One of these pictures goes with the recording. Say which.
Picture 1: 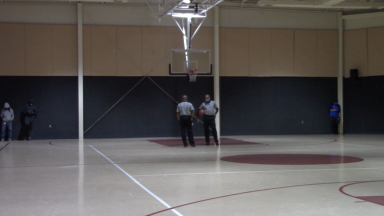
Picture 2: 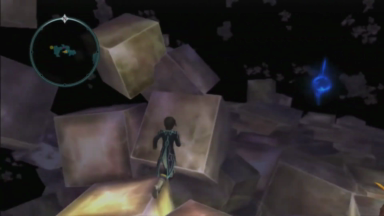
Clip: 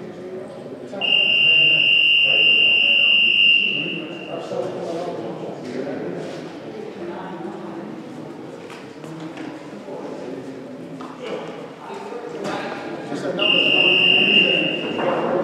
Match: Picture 1